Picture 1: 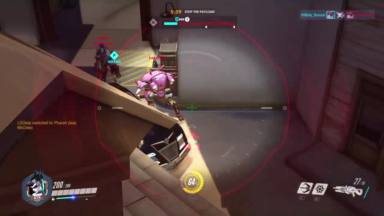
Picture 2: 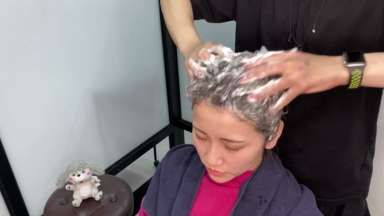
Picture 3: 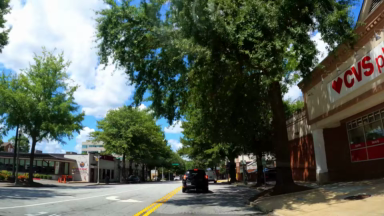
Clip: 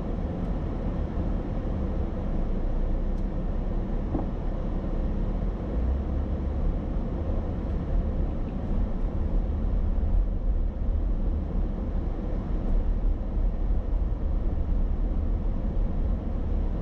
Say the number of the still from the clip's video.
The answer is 3